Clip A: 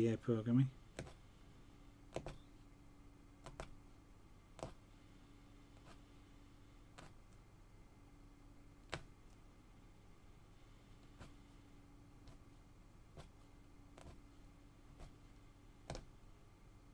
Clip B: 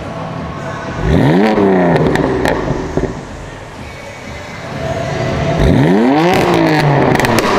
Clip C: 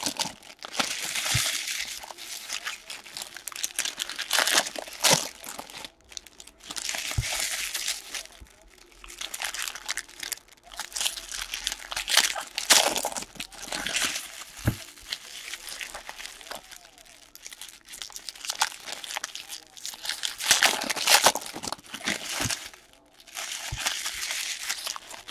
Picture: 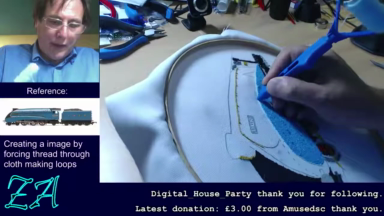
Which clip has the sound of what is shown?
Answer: A